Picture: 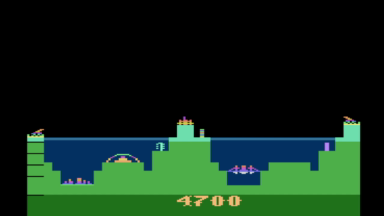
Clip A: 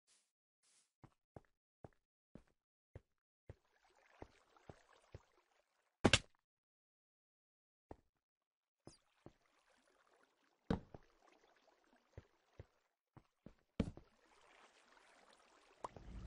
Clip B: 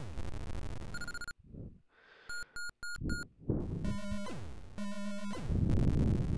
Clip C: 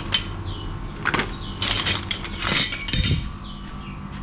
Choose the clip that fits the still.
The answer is B